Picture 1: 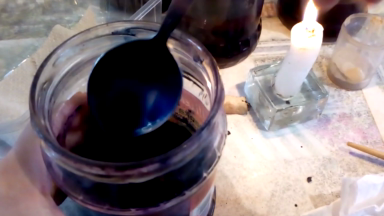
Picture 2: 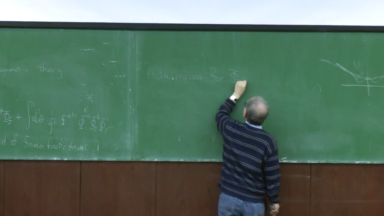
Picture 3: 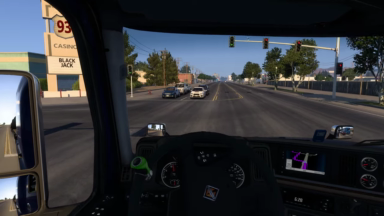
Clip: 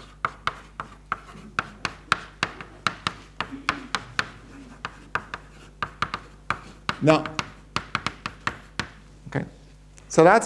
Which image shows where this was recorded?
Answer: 2